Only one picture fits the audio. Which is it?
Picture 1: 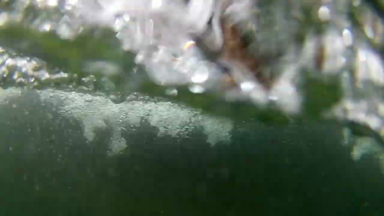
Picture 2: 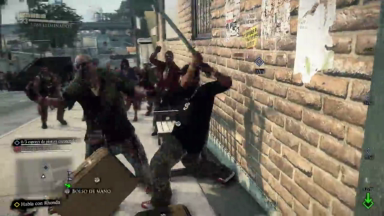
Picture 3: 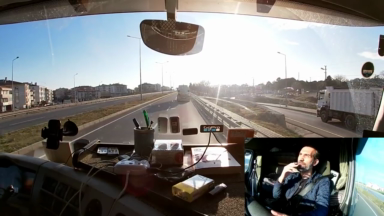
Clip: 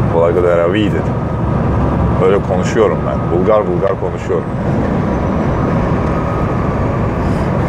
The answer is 3